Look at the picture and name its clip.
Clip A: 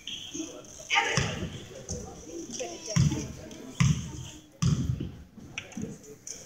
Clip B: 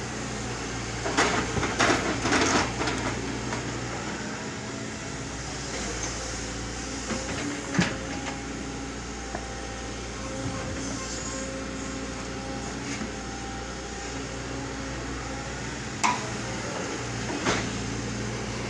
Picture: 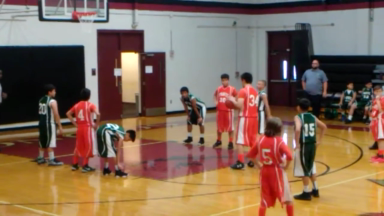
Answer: A